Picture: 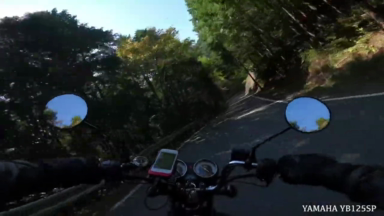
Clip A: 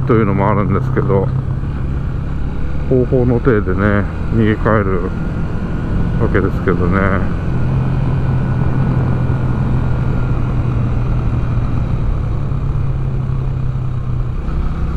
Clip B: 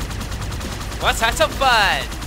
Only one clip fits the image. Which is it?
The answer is A